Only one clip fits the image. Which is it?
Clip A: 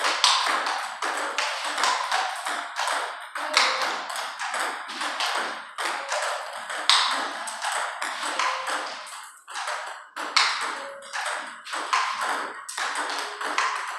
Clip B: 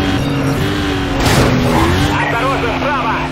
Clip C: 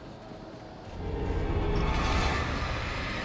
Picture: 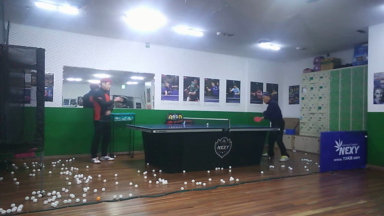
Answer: A